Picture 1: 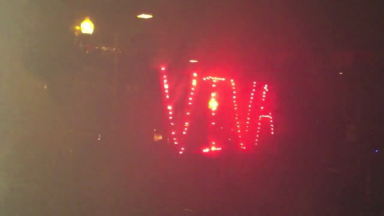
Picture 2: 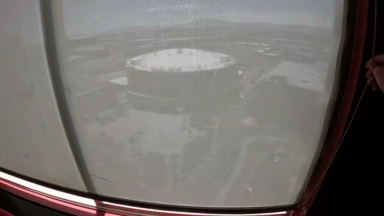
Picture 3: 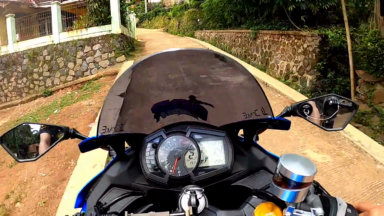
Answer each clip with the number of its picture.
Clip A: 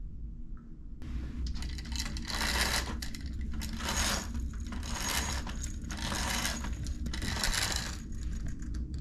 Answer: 2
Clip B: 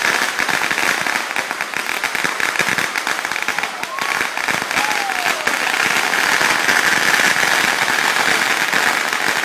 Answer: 1